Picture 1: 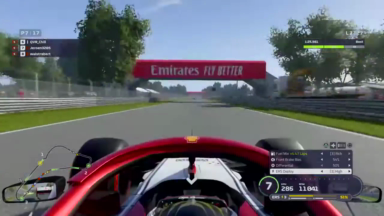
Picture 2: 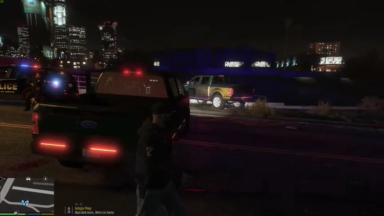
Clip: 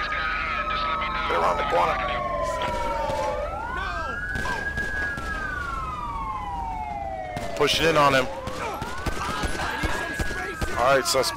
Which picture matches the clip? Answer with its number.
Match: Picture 2